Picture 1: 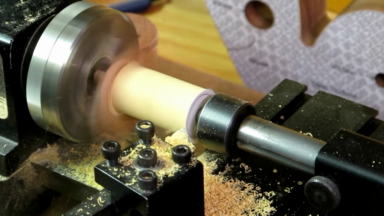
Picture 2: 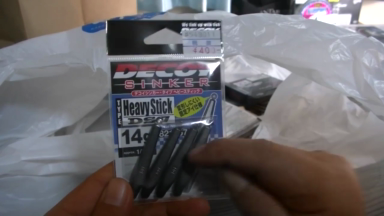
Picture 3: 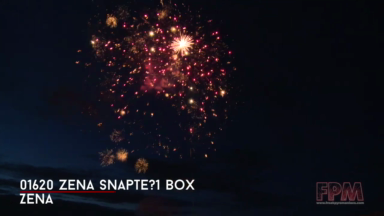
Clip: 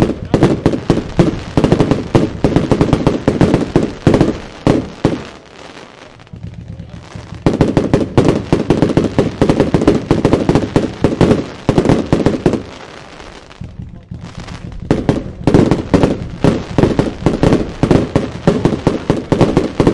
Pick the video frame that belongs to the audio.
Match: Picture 3